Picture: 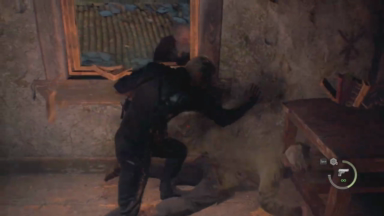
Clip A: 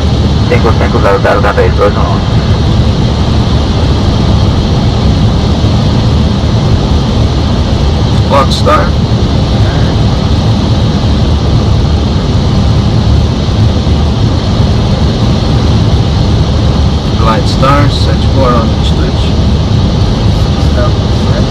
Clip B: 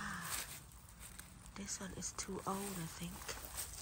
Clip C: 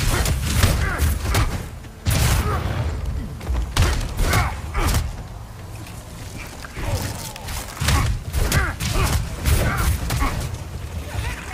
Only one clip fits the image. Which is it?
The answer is C